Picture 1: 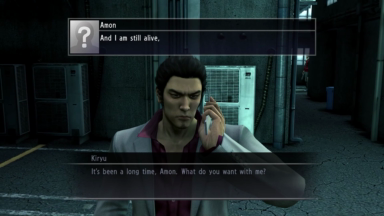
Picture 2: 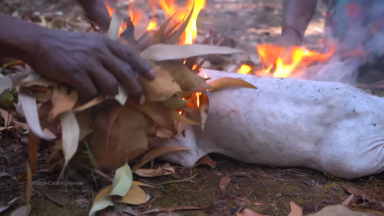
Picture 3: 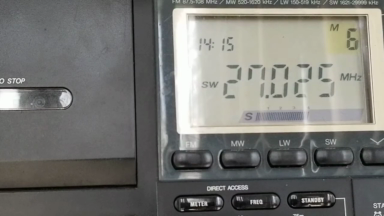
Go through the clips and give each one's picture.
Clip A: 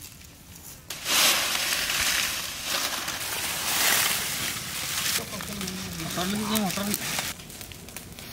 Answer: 2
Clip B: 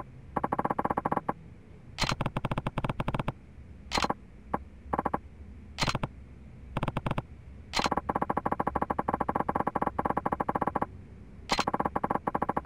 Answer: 1